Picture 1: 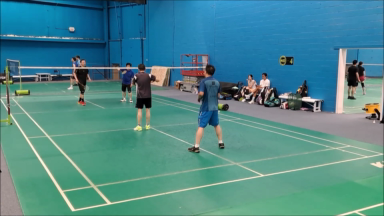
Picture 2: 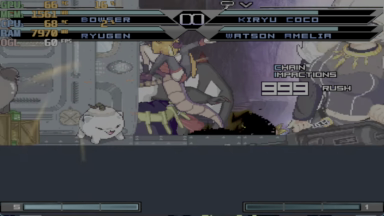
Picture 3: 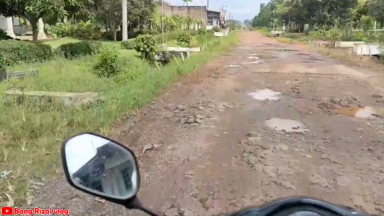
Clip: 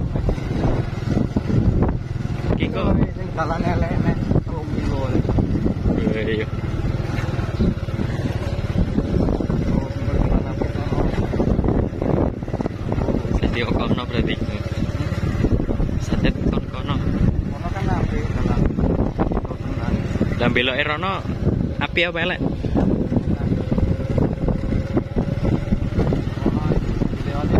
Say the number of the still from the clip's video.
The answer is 3